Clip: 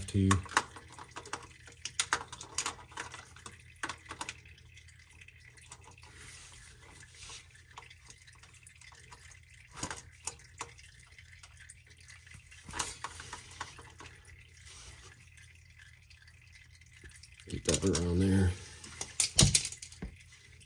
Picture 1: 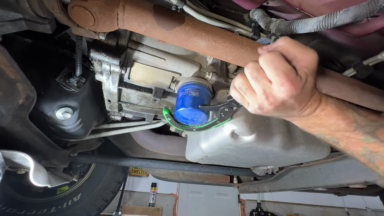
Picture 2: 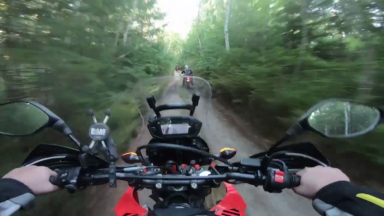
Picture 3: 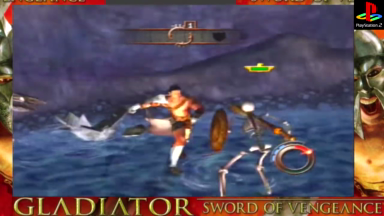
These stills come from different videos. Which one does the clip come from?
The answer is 1